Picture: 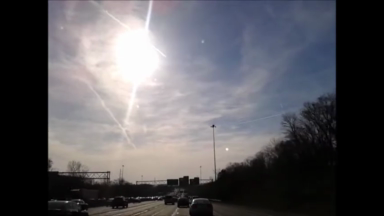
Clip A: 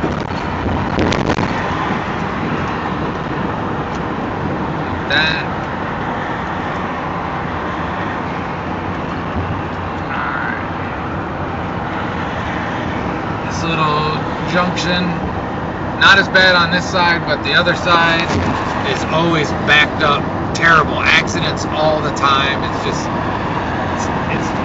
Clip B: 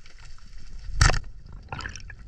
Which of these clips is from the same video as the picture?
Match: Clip A